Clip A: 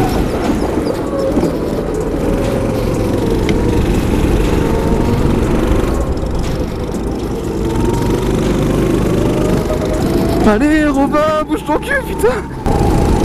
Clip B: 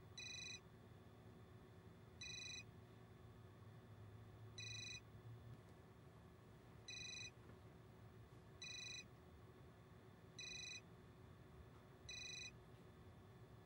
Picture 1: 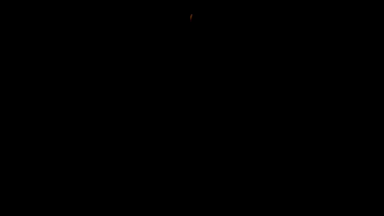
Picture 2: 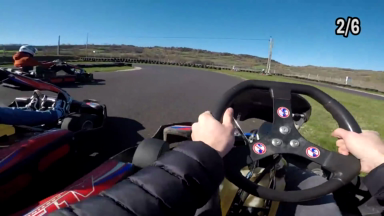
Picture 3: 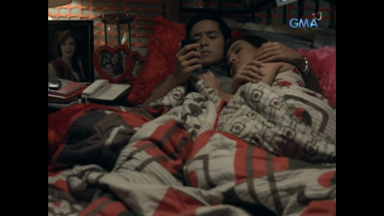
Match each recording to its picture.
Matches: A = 2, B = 3